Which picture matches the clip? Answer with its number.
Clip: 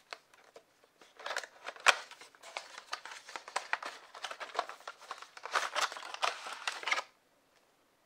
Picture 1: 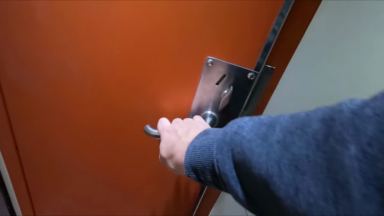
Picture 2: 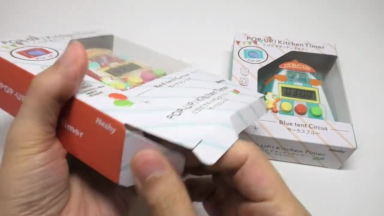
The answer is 2